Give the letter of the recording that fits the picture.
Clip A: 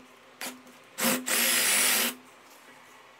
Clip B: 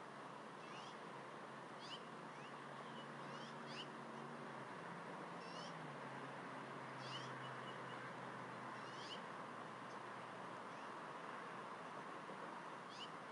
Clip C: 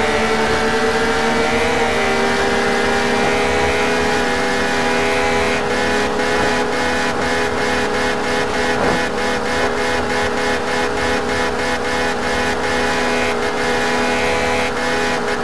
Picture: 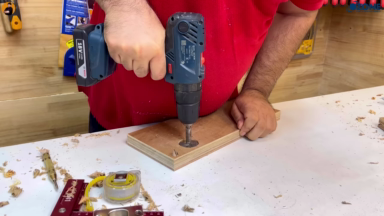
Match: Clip A